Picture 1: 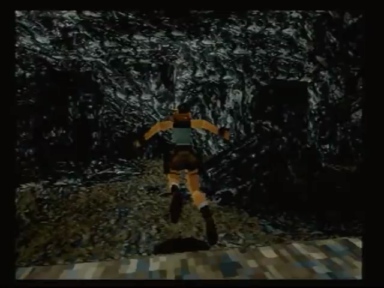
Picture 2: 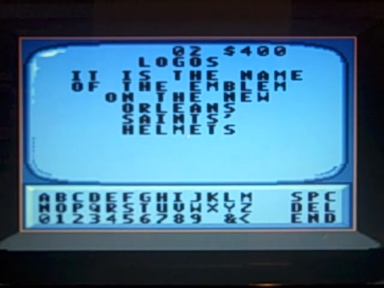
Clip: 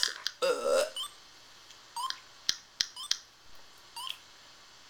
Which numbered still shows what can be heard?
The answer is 2